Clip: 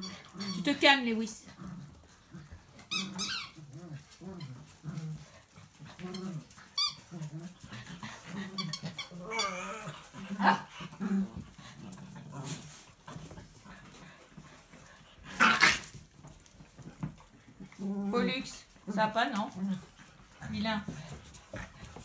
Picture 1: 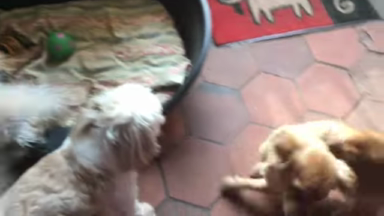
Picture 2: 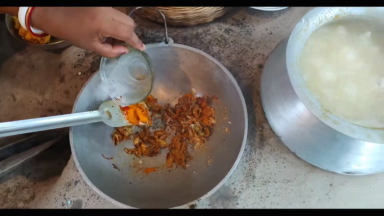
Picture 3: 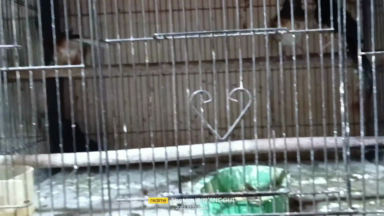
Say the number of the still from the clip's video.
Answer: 1